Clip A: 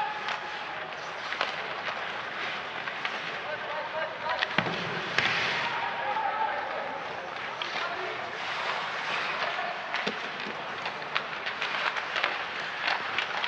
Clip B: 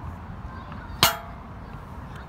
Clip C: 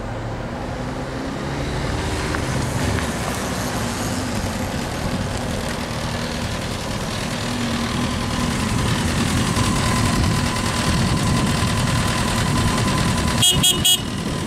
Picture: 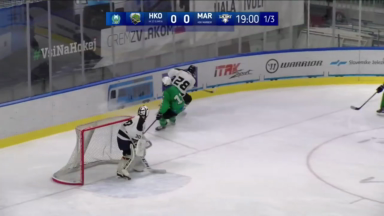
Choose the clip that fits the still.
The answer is A